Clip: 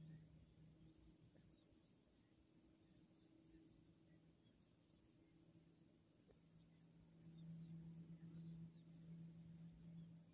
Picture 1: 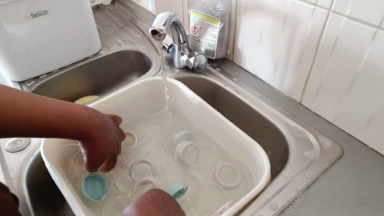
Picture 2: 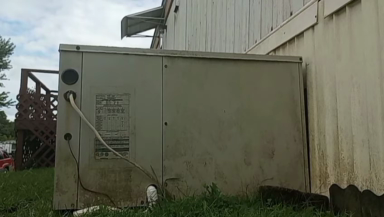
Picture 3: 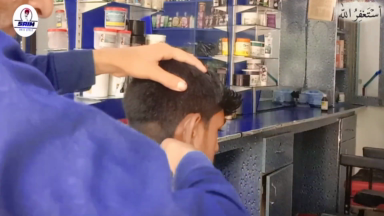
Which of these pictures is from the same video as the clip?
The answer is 2